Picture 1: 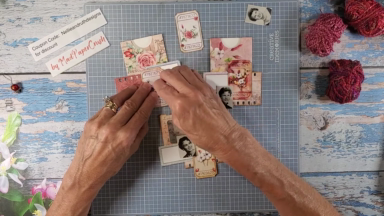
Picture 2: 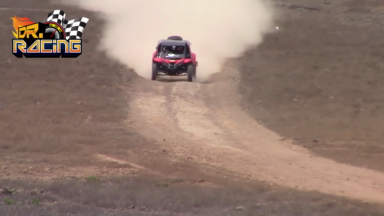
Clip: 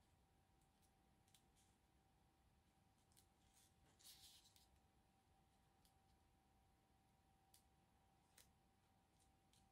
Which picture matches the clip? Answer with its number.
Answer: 1